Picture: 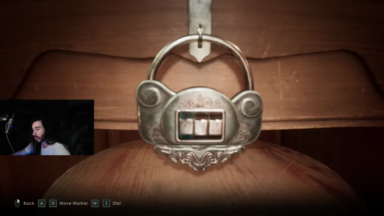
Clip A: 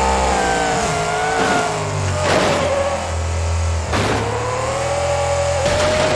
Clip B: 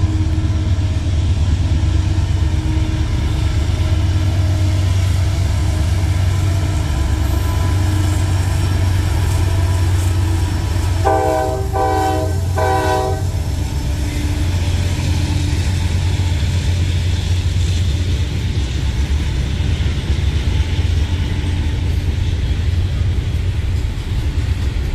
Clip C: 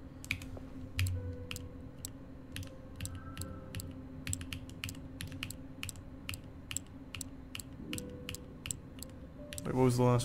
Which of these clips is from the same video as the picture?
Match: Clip C